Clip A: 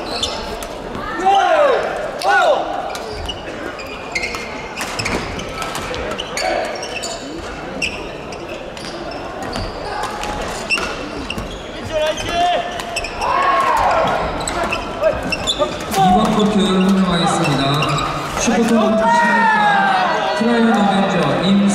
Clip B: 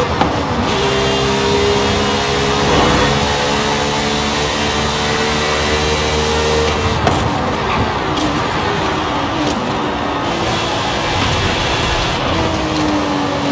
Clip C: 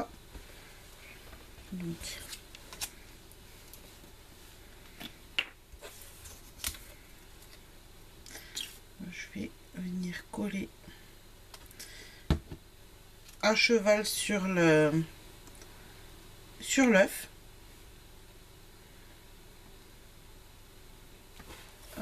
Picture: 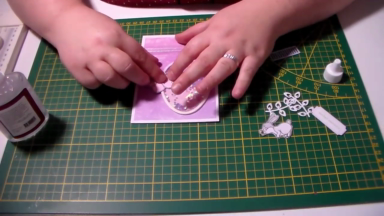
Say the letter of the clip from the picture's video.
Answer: C